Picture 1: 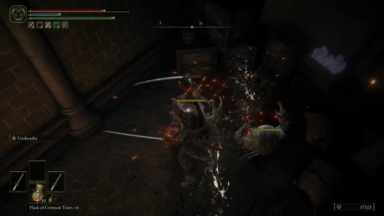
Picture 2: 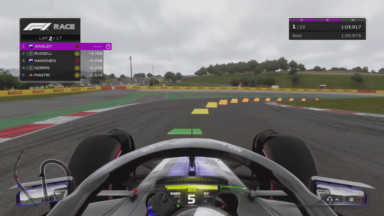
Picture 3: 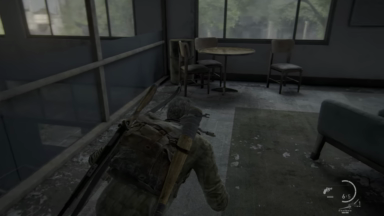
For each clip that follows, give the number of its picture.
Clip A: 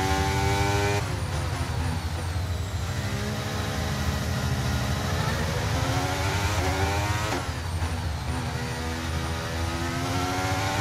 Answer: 2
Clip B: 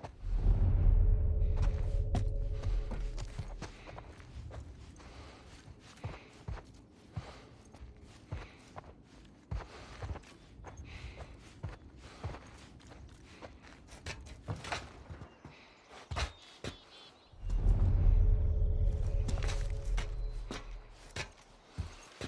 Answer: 3